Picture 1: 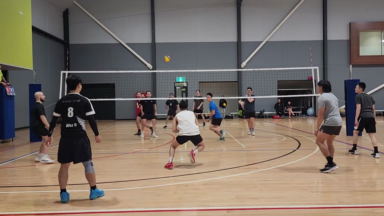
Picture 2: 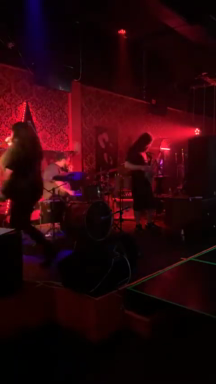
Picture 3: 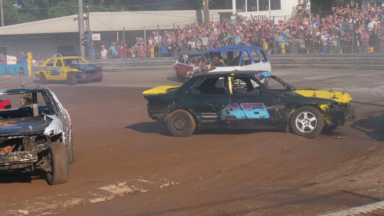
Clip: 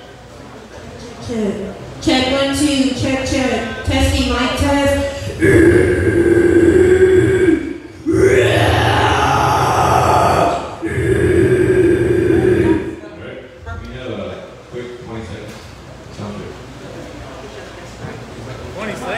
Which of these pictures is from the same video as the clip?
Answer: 2